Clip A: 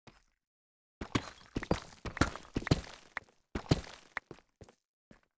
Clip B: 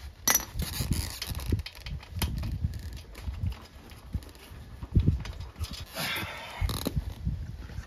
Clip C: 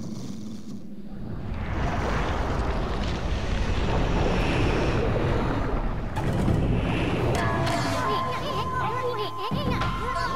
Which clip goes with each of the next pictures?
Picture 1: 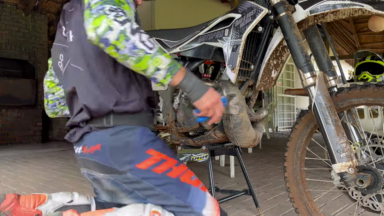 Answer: B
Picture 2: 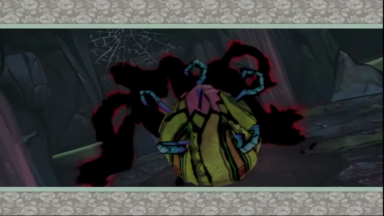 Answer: C